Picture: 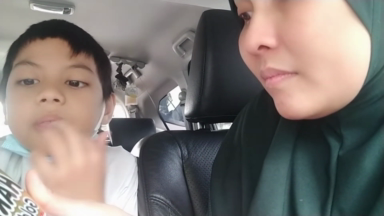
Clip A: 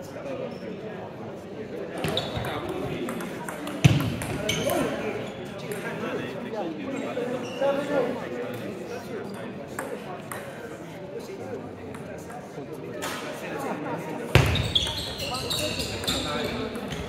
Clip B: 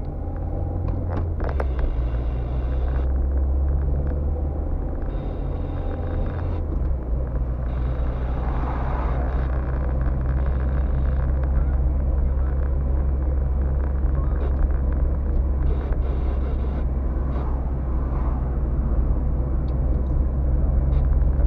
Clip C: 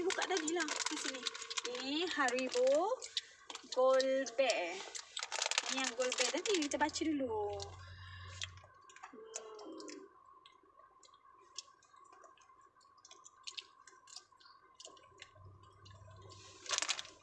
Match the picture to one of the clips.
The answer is C